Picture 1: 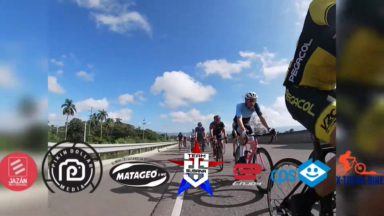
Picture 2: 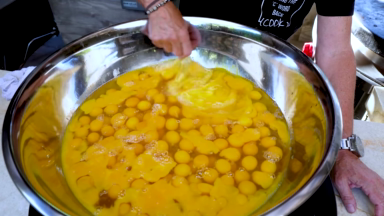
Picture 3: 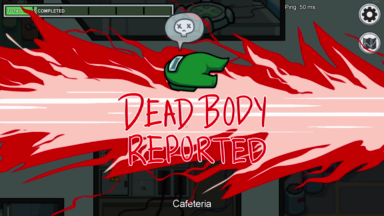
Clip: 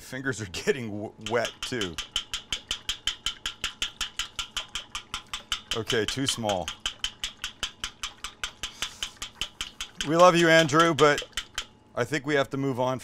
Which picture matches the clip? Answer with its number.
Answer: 2